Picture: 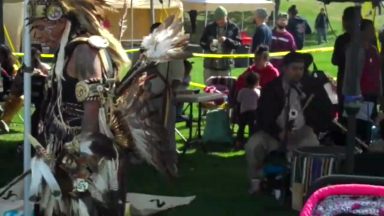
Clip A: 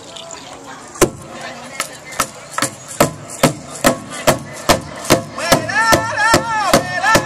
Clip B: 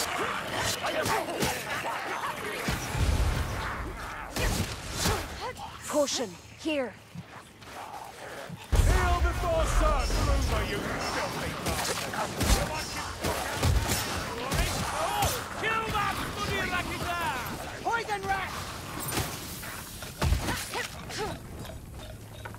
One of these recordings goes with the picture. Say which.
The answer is A